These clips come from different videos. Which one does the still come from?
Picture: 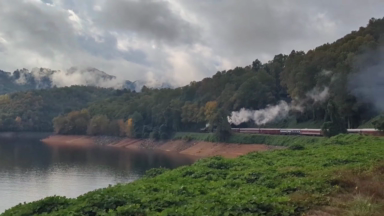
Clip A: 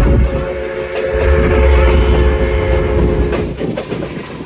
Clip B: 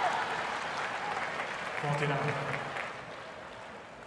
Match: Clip A